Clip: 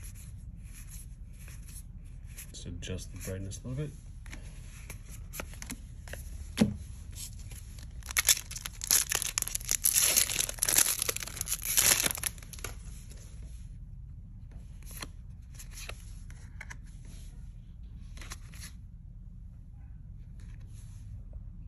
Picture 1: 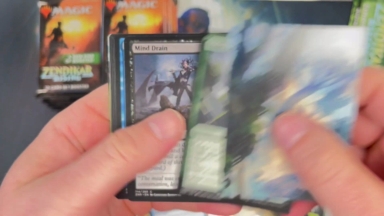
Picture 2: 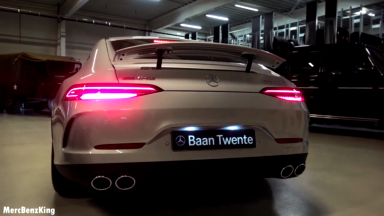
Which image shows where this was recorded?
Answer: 1